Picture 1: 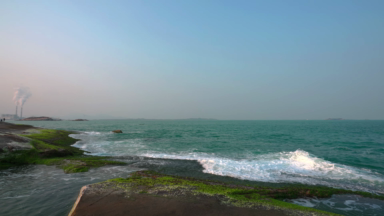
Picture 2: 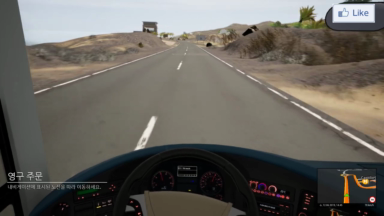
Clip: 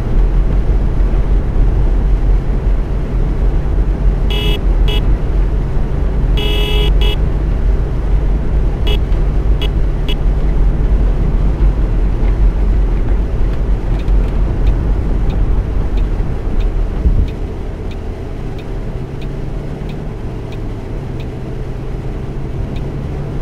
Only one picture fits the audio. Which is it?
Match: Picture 2